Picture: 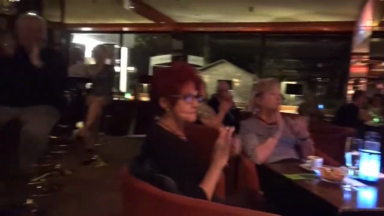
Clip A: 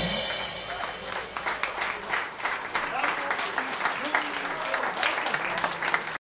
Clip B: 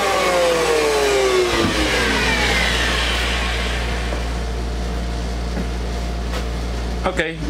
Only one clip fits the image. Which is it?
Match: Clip A